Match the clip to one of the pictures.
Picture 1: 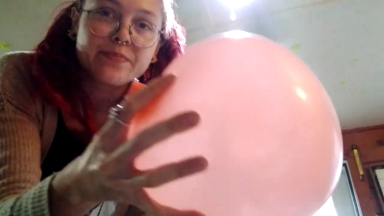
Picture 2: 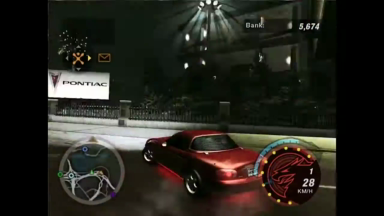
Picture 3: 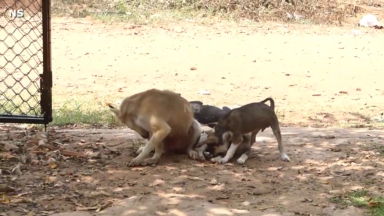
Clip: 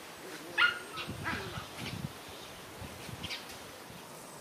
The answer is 3